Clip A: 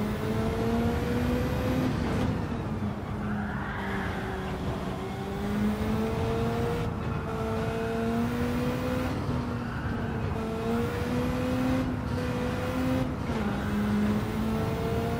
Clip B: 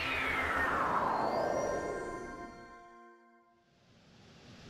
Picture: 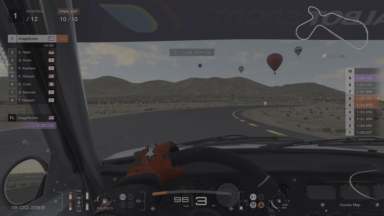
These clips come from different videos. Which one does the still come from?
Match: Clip A